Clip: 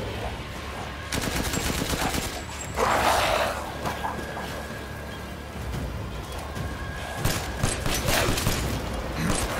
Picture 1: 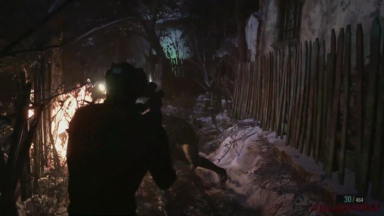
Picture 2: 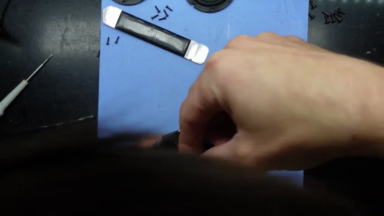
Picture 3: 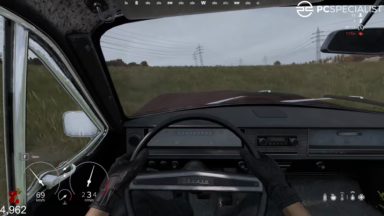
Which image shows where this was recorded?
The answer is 1